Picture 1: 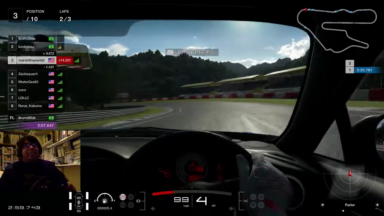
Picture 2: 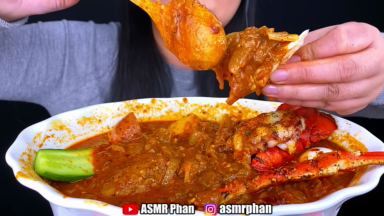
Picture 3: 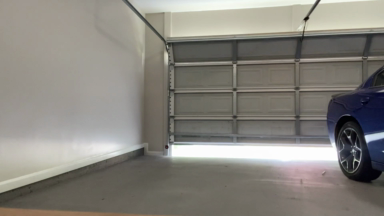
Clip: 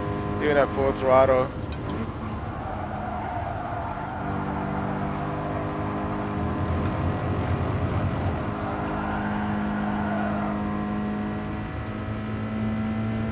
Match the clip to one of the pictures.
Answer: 1